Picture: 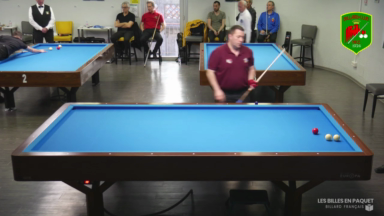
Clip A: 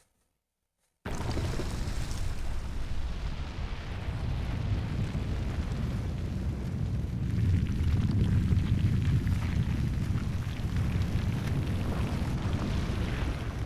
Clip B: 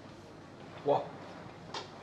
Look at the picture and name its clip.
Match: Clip B